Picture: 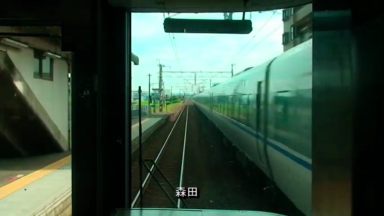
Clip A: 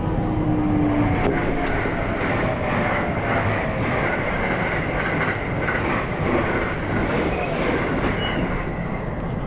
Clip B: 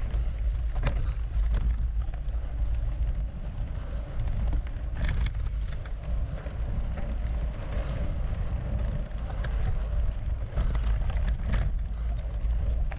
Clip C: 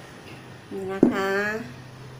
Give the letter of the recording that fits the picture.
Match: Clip A